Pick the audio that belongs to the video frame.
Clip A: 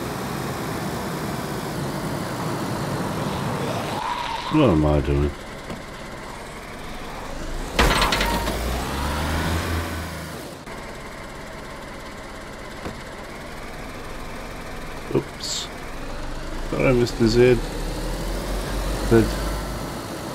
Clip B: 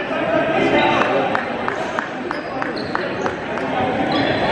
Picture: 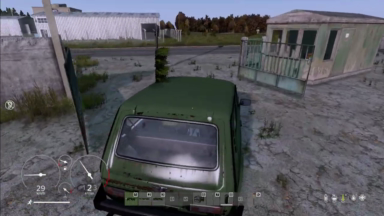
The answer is A